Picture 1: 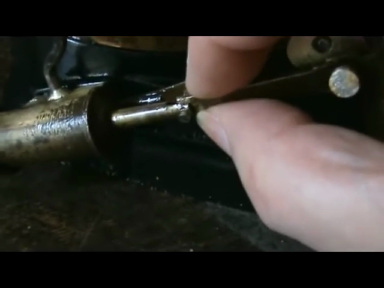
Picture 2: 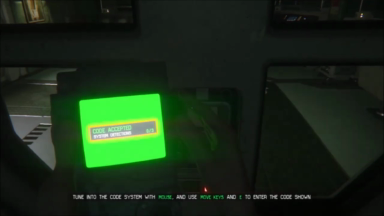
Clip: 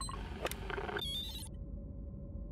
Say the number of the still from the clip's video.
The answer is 2